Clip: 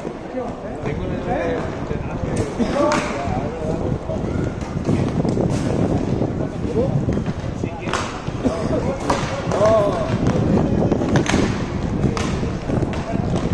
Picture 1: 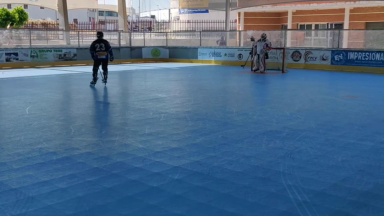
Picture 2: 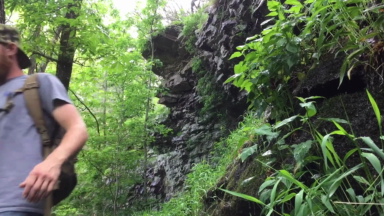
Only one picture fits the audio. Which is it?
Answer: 1